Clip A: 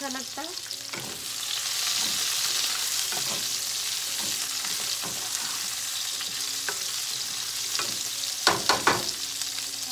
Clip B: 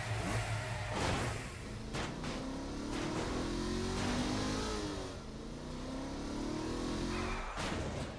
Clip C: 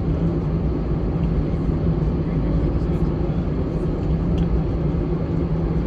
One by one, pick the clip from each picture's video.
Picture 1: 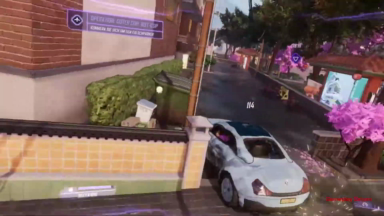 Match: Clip B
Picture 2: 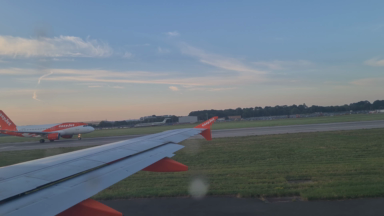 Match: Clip C